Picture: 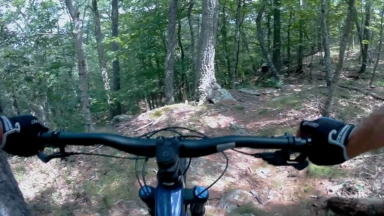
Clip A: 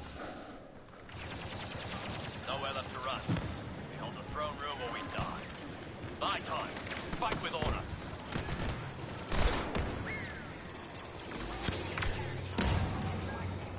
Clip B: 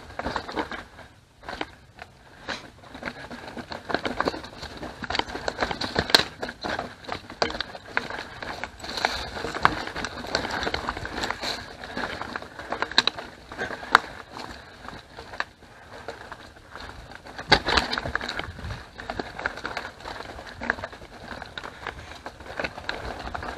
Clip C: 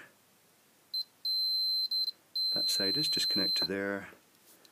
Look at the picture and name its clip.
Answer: B